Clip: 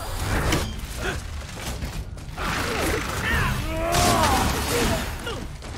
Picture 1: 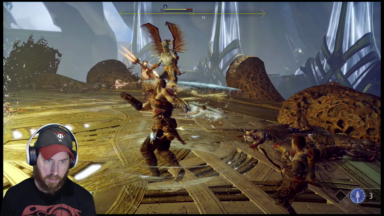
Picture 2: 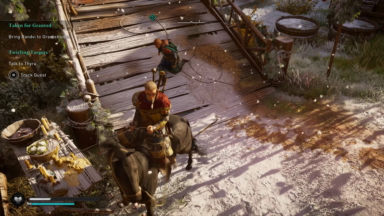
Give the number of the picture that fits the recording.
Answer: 1